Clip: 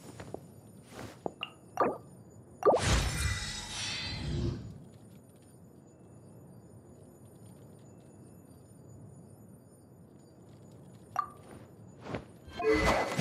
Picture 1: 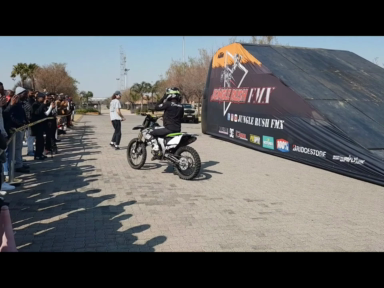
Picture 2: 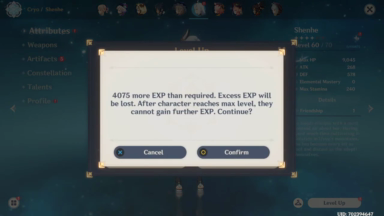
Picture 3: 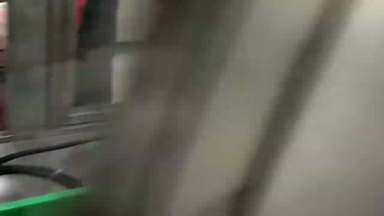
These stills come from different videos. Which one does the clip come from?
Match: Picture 2